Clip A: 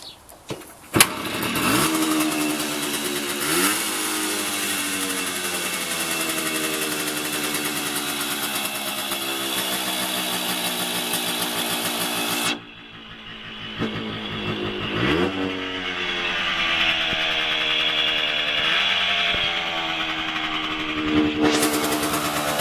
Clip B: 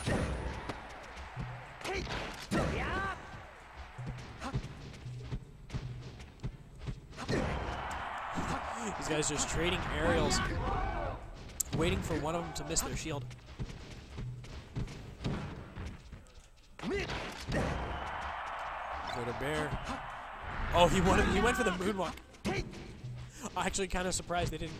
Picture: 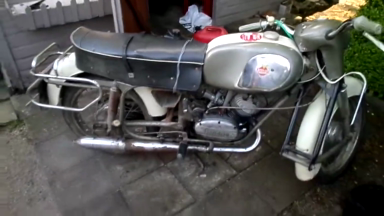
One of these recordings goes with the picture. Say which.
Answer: A